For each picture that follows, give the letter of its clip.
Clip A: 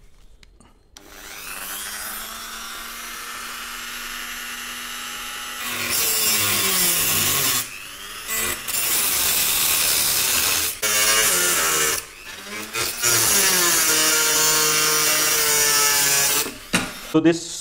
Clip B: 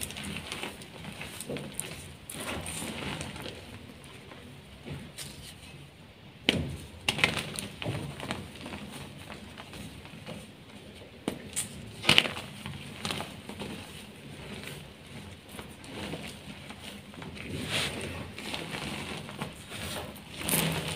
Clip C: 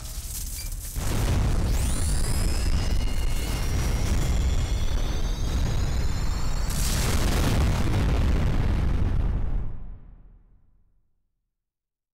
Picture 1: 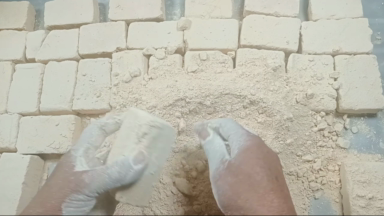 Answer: B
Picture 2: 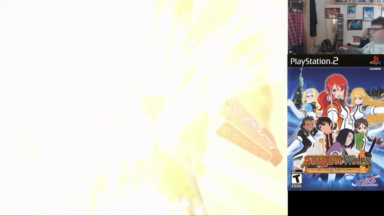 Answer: C